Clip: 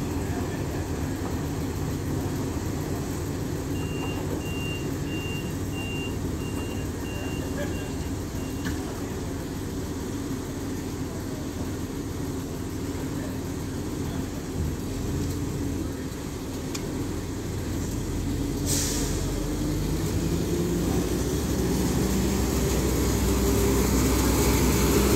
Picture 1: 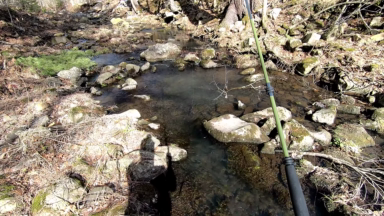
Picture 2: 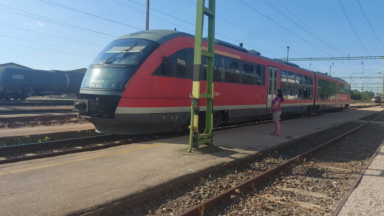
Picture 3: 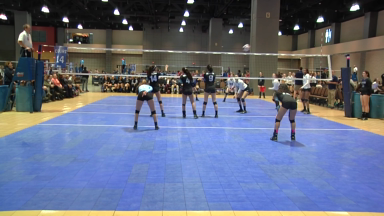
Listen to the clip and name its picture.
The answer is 2